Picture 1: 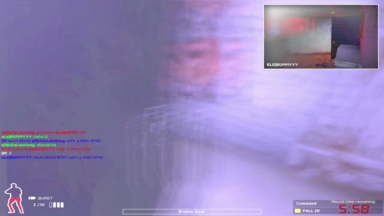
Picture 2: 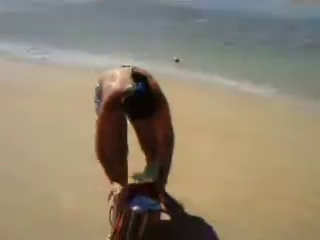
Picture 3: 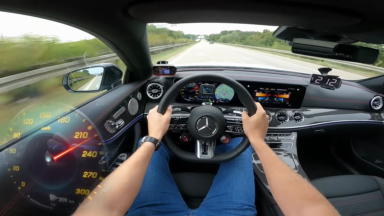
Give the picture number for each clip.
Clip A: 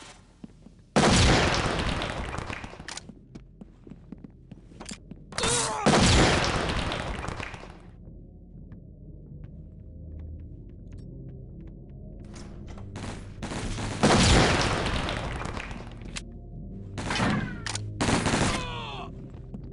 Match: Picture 1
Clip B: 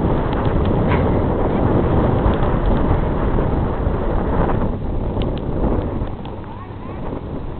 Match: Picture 2